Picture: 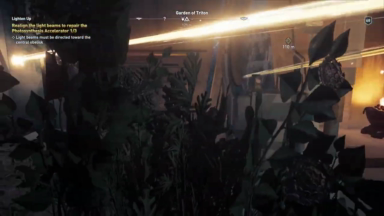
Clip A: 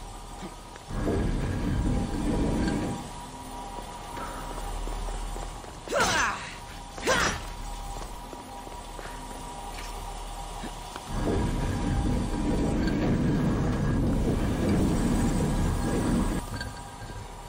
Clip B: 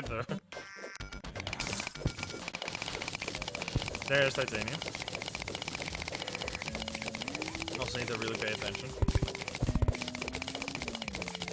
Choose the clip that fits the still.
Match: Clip A